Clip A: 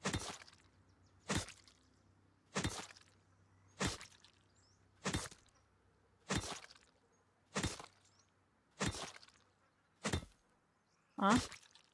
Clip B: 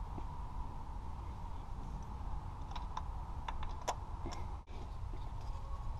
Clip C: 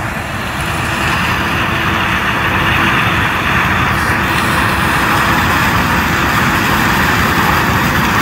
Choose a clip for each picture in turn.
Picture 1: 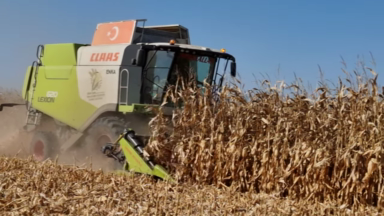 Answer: C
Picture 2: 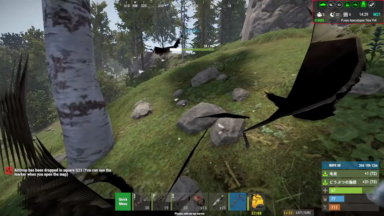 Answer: A